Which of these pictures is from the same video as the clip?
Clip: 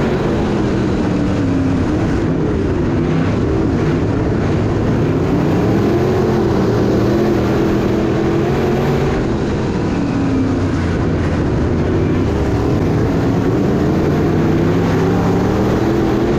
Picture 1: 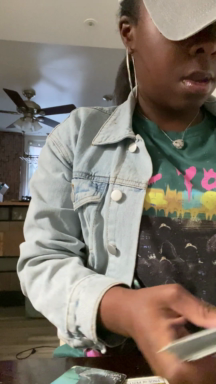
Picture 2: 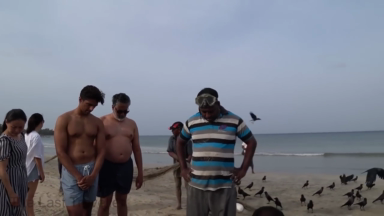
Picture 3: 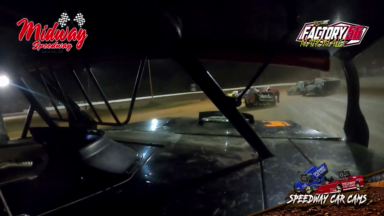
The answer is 3